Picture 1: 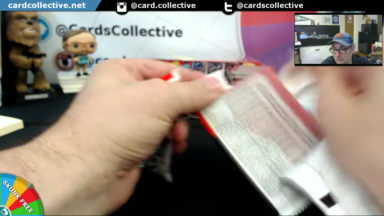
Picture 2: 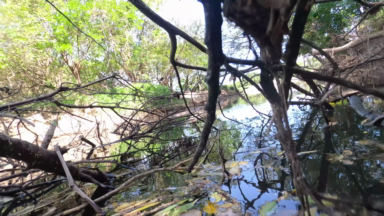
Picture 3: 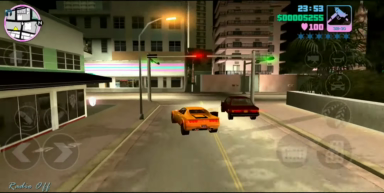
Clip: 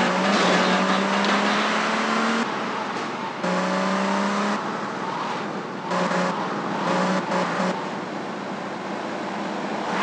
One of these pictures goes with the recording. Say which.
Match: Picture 3